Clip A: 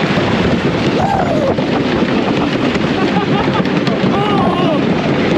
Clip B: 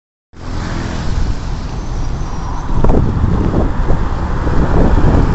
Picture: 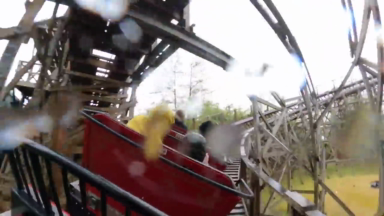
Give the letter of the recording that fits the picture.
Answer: A